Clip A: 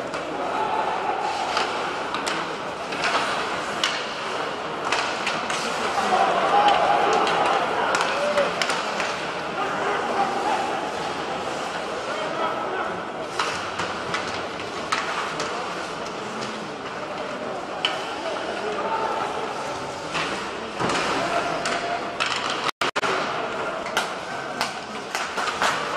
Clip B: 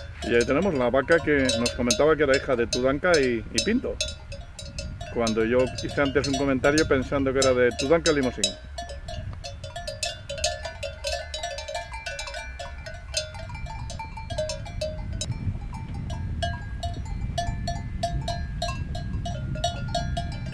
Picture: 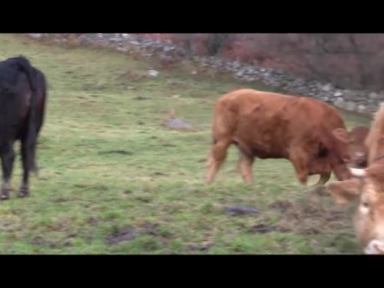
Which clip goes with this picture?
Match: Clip B